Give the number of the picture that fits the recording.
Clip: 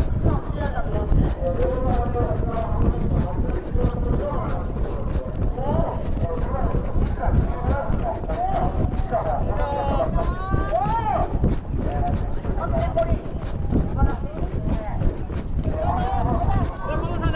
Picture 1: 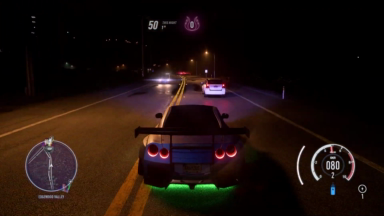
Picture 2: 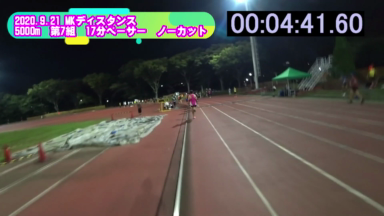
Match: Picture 2